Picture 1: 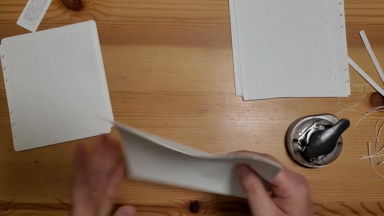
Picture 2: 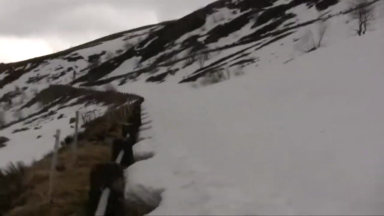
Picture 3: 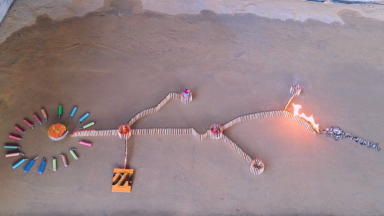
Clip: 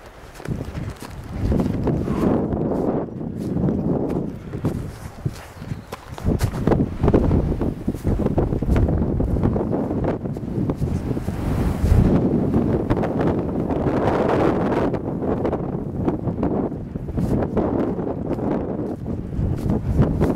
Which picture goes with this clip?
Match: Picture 2